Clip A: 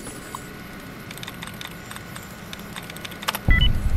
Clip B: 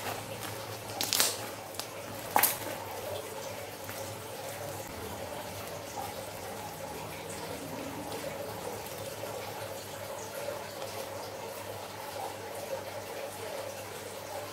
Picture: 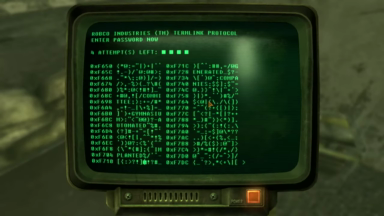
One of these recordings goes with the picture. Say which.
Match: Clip A